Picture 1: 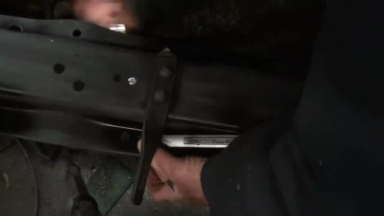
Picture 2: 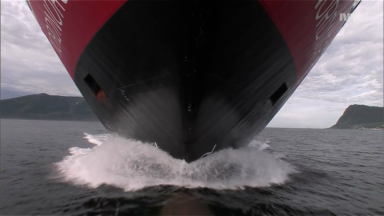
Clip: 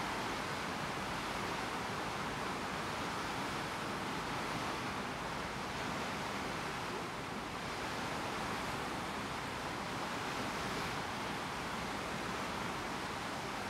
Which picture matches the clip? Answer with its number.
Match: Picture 2